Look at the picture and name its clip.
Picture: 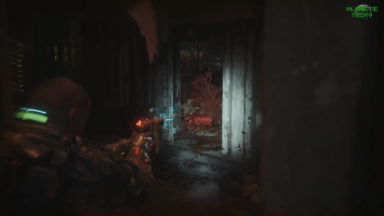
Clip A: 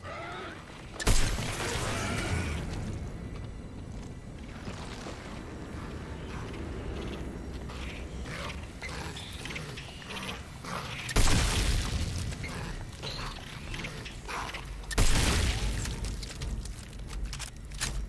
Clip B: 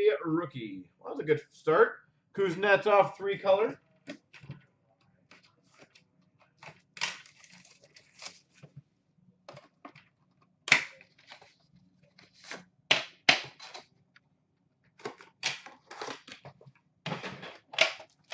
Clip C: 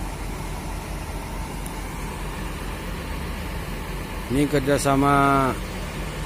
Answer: A